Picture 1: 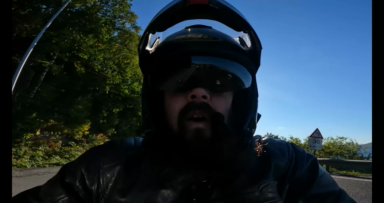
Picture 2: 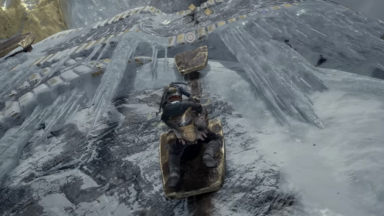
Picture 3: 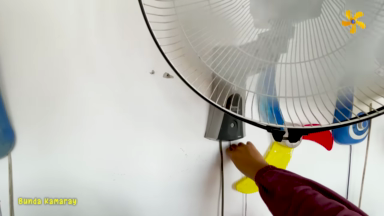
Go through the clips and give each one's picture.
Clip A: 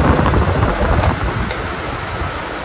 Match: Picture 3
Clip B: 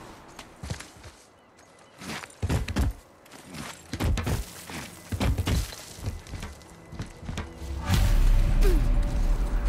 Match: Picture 2